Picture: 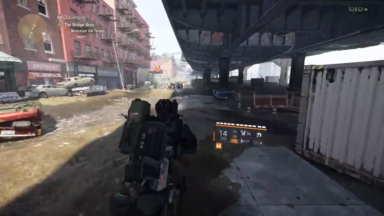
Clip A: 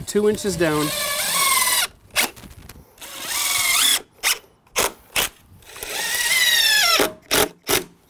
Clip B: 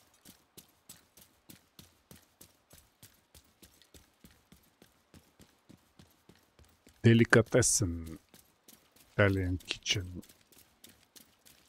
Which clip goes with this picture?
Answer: B